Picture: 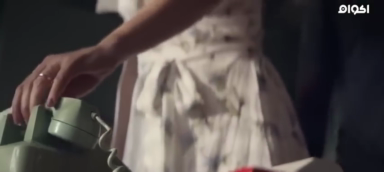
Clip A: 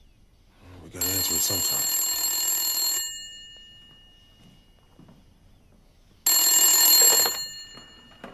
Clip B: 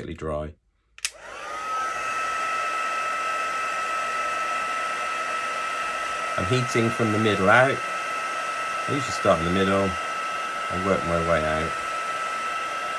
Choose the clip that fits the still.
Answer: A